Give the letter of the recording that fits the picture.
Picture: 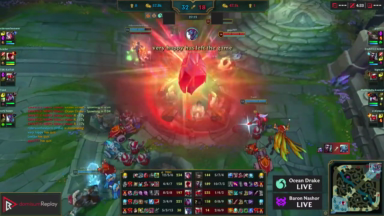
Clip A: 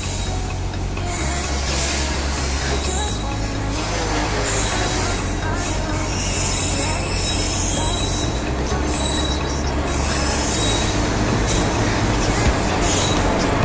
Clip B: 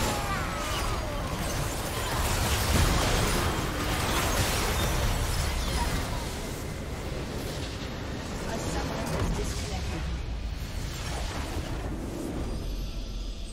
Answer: B